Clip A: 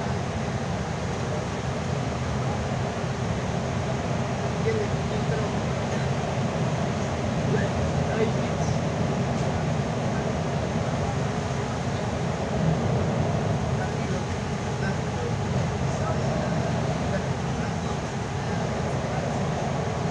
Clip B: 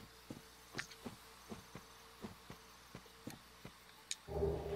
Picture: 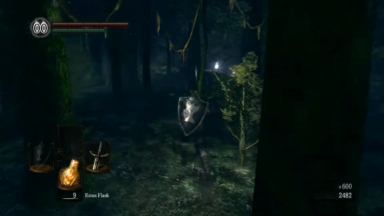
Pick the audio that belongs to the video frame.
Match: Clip B